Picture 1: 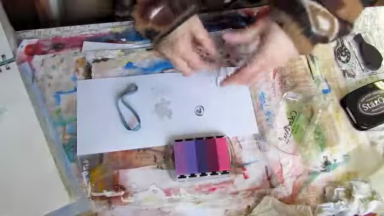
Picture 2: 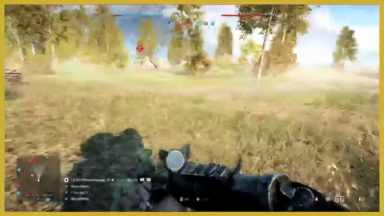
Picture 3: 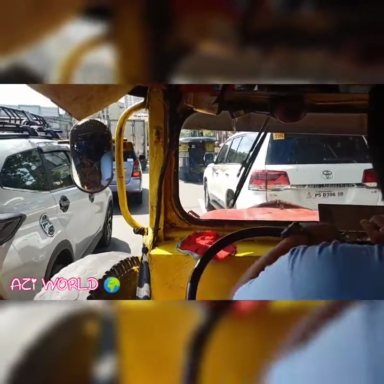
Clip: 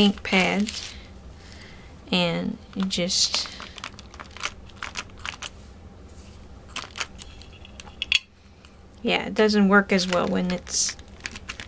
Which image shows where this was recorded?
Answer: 1